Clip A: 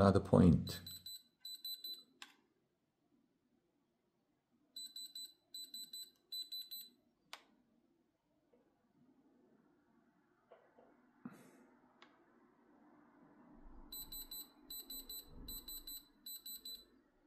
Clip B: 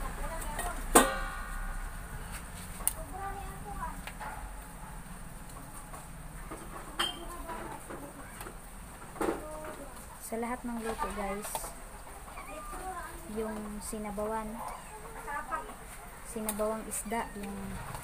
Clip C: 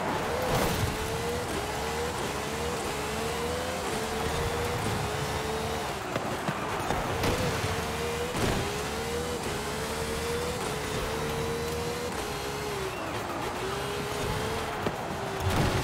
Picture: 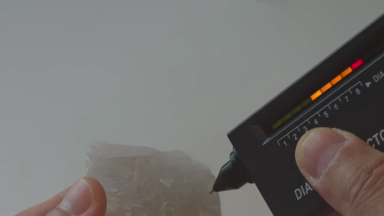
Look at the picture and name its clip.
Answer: A